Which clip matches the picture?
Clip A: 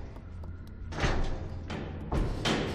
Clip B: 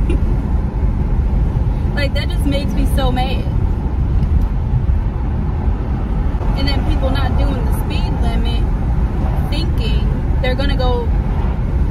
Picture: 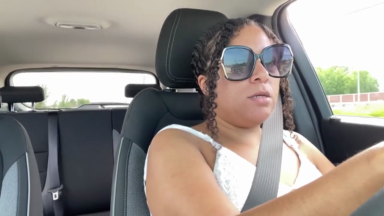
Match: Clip B